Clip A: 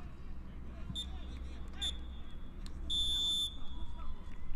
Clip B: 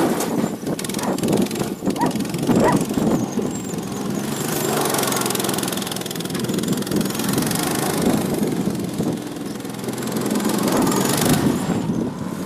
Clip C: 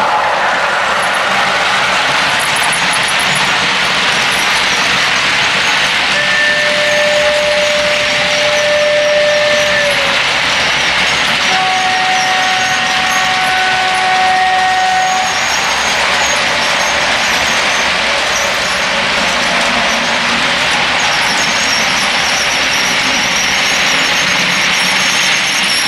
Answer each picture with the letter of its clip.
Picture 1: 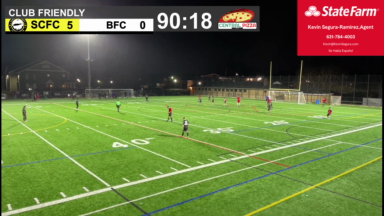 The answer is A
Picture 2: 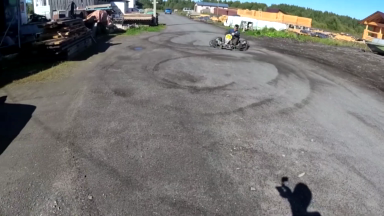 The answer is B